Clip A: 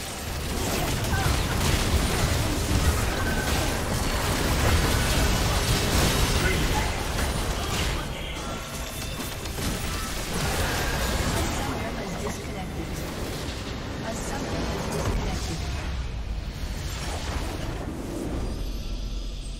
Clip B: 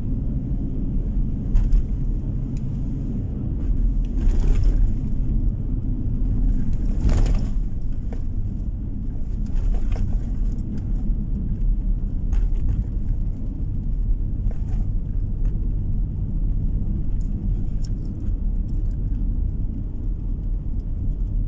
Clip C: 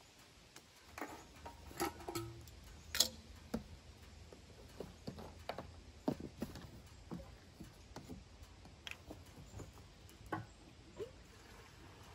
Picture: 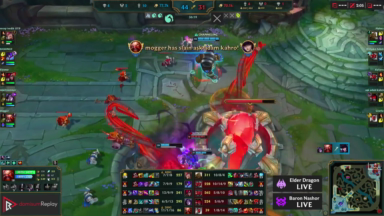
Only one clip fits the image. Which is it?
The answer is A